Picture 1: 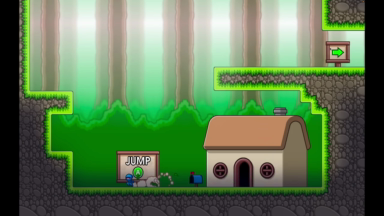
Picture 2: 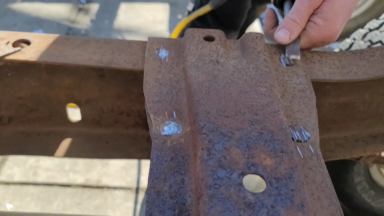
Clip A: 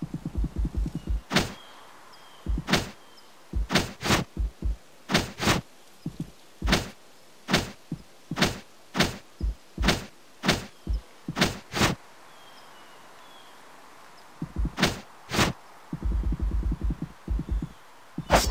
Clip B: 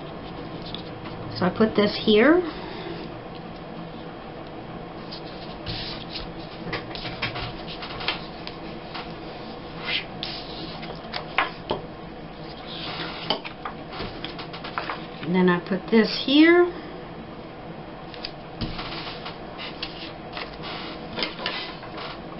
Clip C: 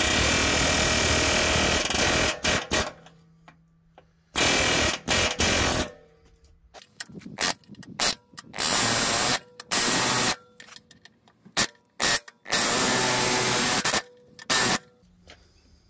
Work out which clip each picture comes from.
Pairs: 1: A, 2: C